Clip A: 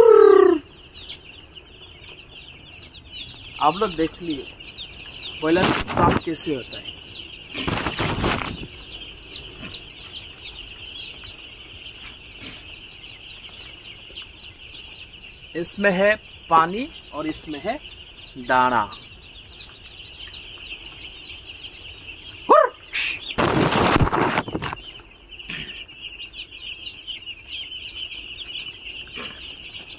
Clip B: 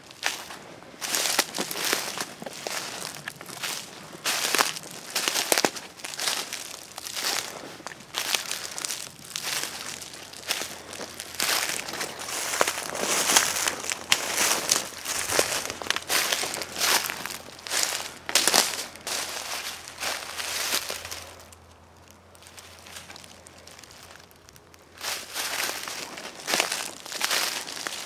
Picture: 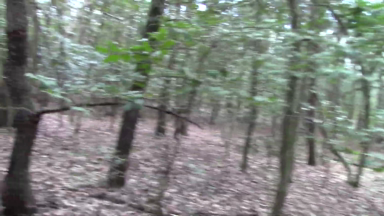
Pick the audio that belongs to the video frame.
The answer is B